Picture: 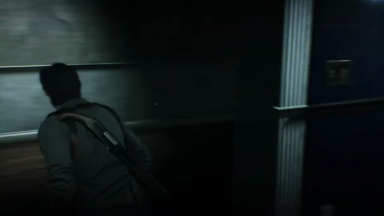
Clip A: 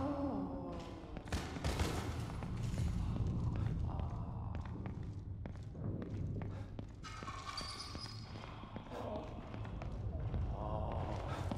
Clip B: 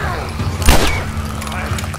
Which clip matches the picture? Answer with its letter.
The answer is A